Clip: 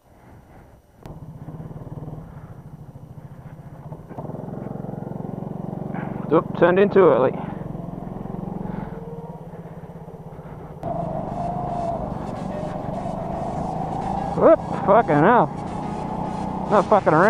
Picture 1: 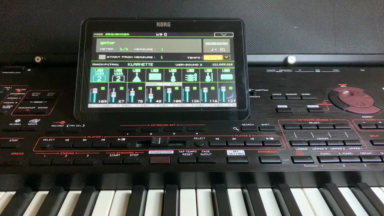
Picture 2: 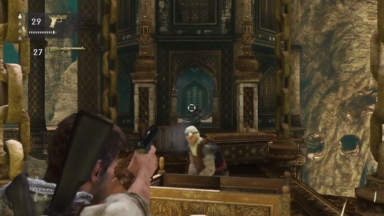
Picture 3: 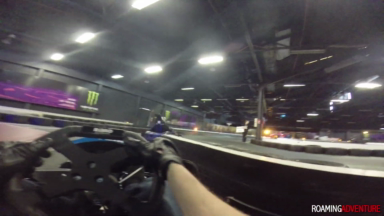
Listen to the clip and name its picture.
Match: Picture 3